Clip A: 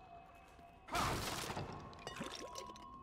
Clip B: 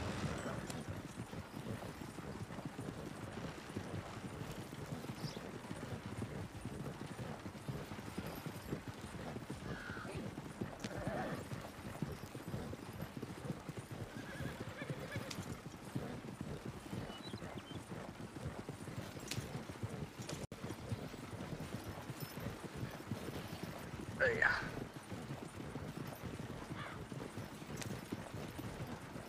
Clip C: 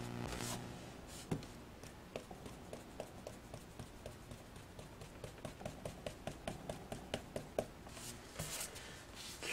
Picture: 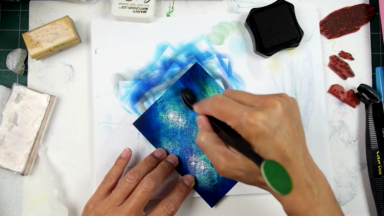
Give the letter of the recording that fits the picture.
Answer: C